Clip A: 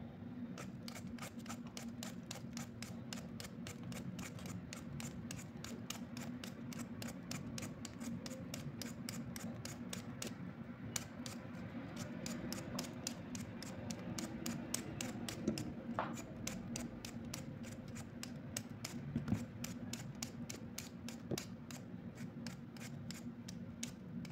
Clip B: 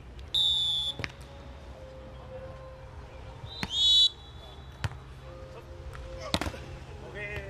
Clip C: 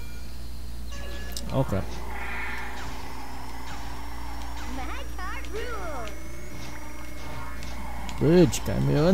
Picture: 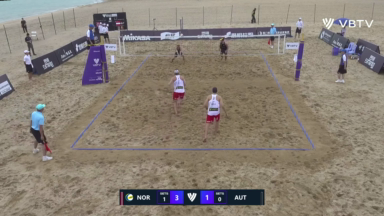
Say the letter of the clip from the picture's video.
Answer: B